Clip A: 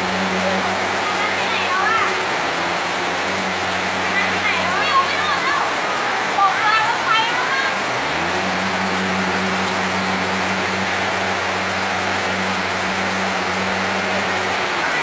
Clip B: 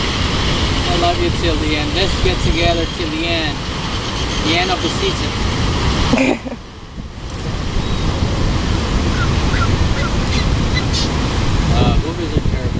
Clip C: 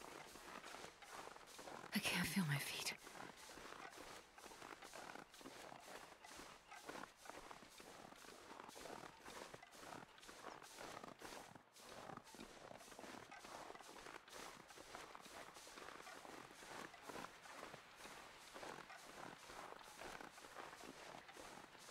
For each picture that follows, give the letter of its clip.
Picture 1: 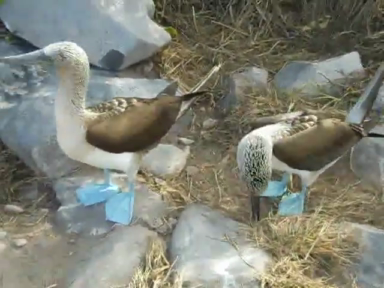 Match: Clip B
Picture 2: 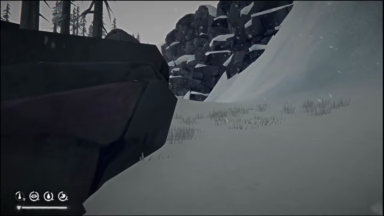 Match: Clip C